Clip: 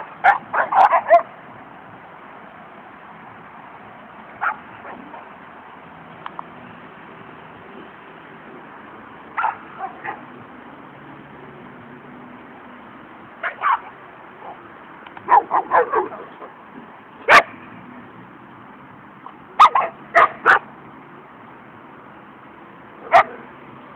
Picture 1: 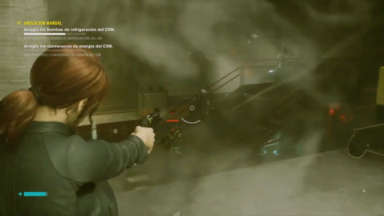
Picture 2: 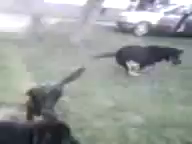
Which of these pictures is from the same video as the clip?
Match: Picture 2